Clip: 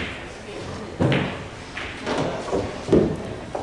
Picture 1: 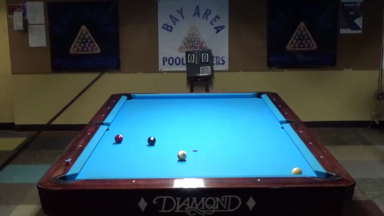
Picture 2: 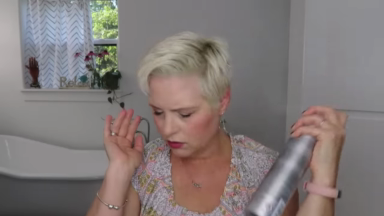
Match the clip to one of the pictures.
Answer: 1